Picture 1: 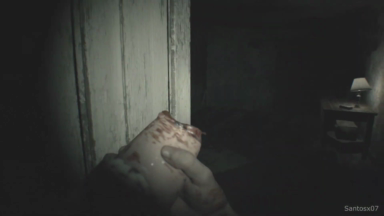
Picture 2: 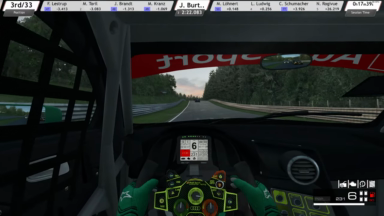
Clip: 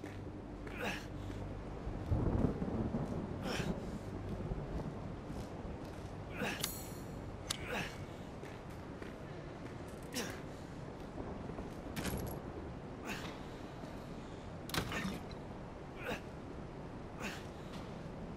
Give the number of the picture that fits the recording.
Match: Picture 1